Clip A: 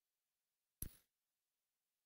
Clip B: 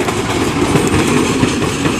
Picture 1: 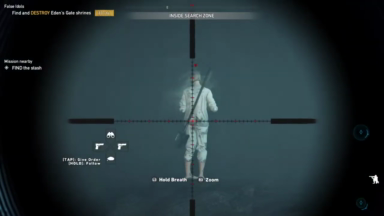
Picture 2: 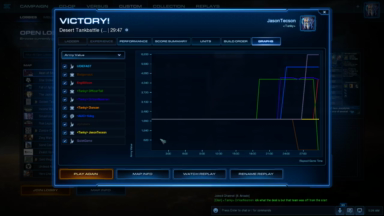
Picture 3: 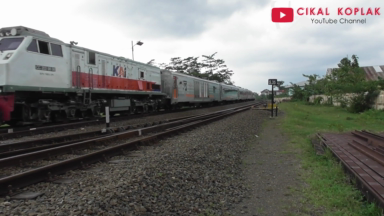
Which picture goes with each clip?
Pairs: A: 2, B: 3